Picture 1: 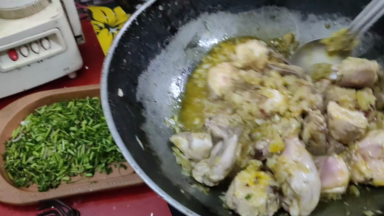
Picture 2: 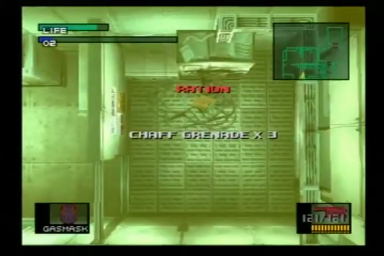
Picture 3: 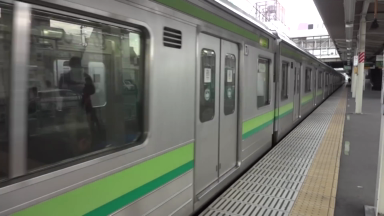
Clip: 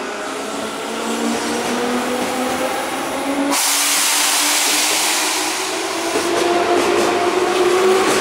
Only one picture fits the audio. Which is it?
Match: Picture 3